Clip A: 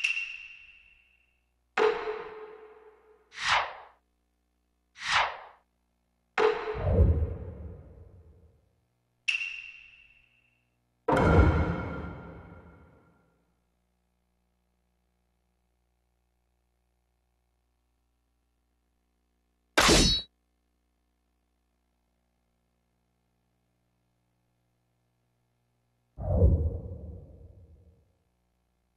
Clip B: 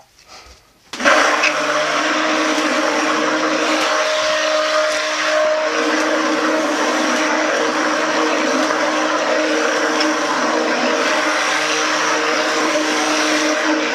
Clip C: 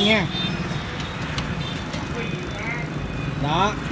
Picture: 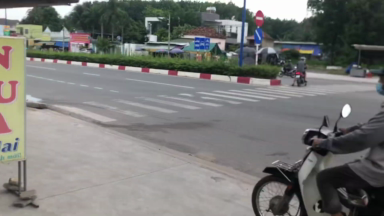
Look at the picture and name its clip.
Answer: C